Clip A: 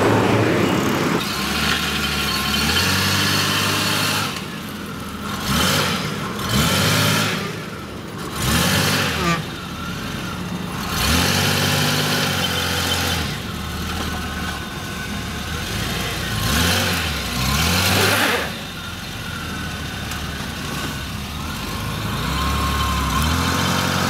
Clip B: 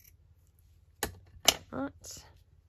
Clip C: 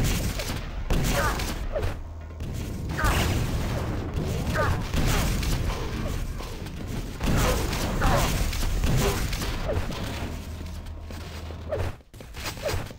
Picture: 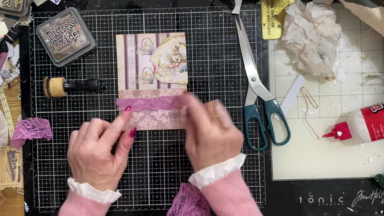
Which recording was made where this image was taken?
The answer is B